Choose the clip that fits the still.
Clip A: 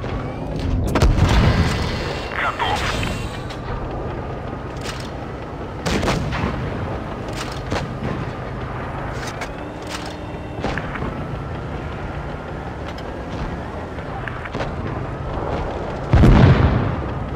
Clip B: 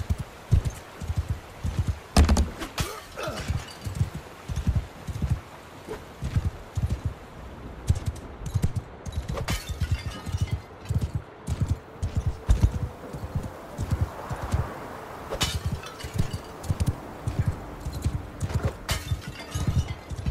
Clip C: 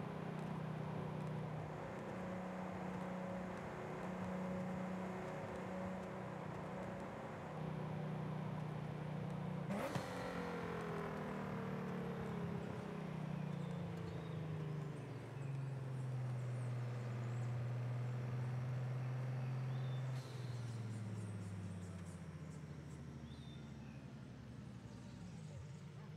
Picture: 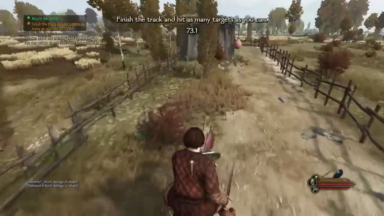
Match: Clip B